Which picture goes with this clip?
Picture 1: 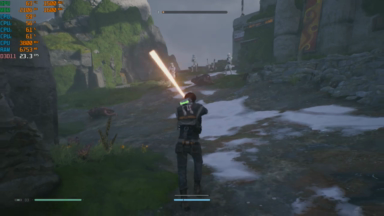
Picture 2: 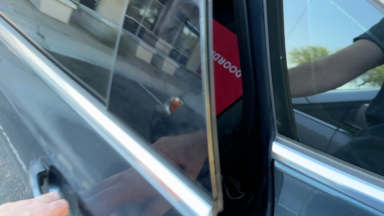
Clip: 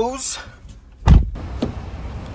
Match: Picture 2